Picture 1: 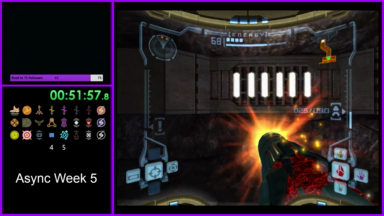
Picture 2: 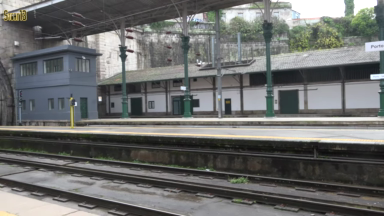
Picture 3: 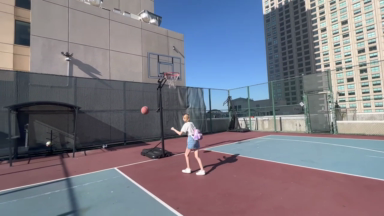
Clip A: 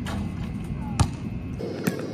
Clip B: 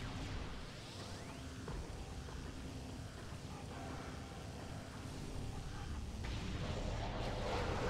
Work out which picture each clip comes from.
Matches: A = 3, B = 1